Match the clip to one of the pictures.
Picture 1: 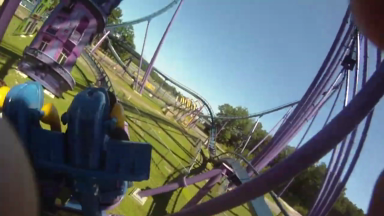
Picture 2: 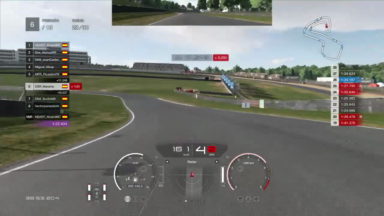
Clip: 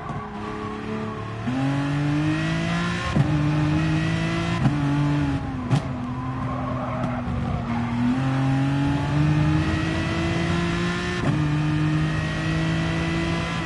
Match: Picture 2